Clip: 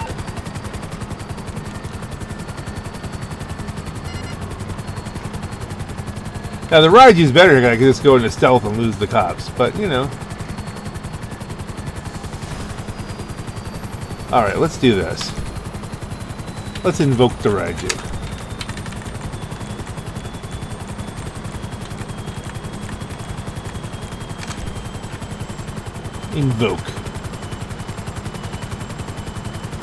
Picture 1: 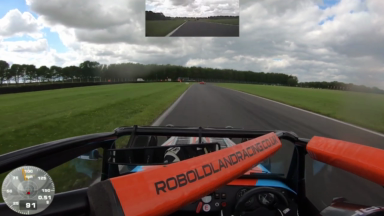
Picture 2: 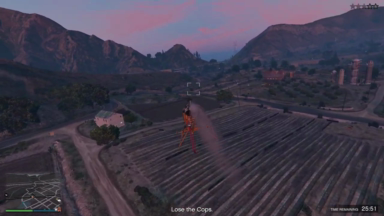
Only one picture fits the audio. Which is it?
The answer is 2